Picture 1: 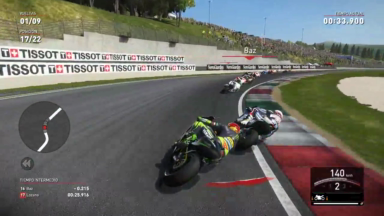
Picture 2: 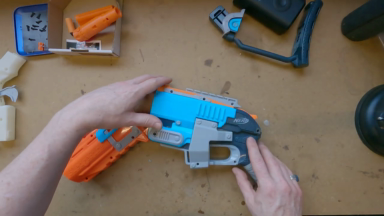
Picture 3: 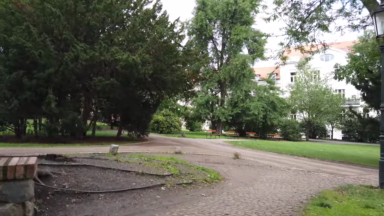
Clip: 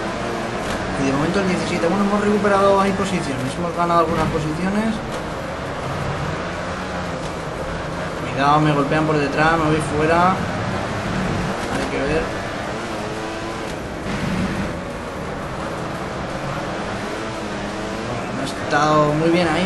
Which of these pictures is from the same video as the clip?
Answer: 1